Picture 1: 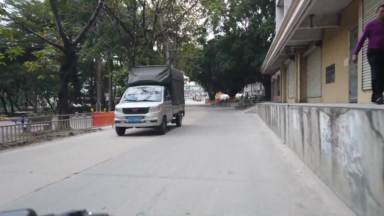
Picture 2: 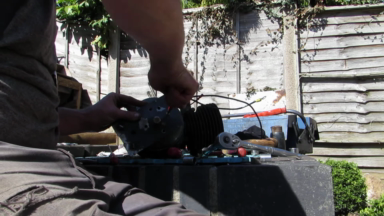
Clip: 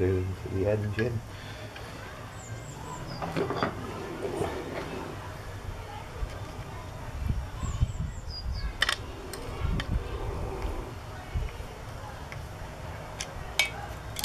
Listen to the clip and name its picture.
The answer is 2